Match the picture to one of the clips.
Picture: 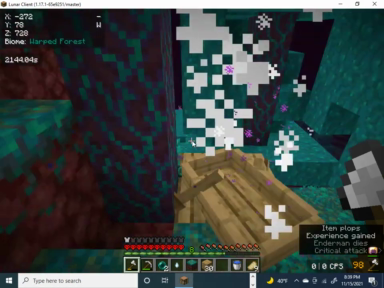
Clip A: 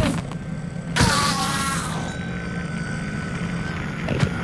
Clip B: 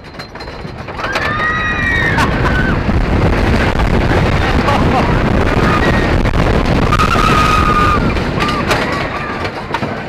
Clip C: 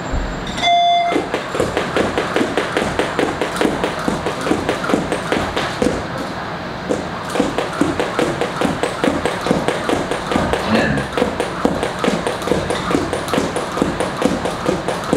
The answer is A